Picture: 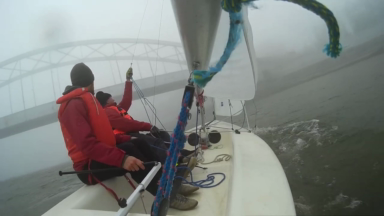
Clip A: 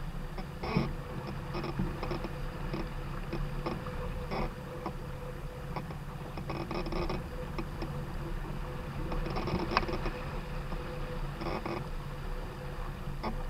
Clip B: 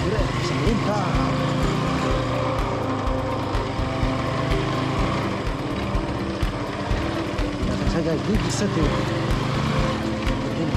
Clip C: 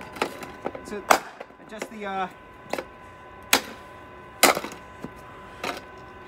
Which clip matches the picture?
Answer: A